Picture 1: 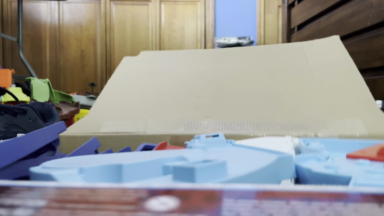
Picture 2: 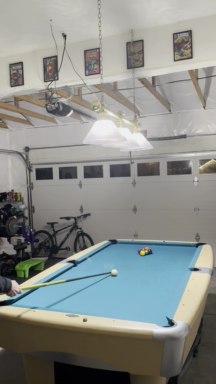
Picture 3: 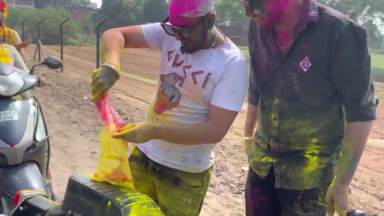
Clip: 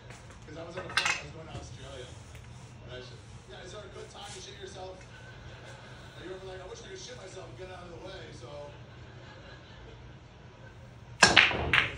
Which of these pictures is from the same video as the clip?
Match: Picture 2